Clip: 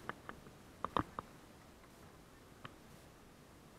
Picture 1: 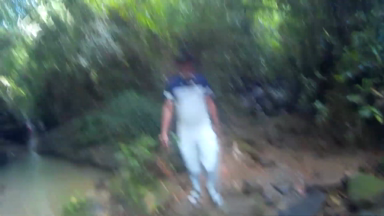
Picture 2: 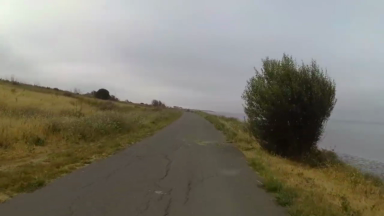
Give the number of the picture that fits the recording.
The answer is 1